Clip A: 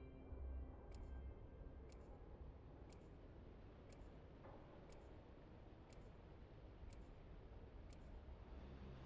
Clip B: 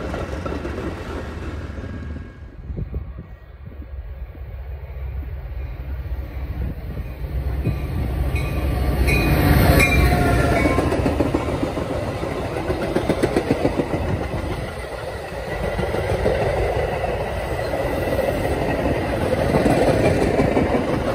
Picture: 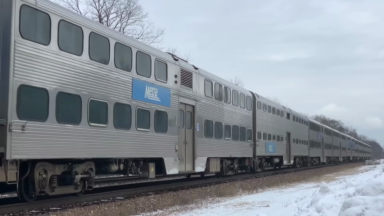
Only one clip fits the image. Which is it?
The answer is B